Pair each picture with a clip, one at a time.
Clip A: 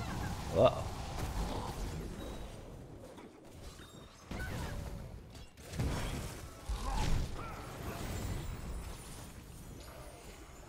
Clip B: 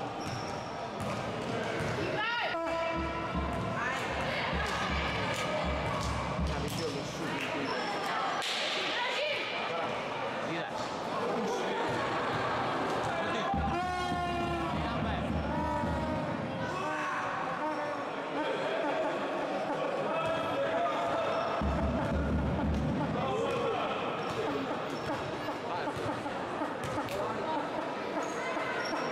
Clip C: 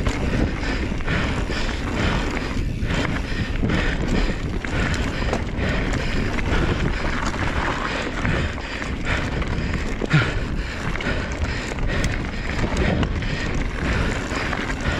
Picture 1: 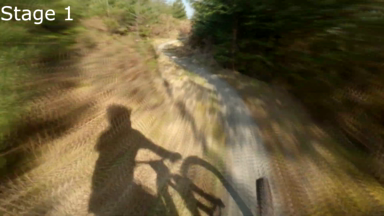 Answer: C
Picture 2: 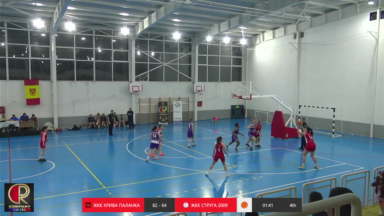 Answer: B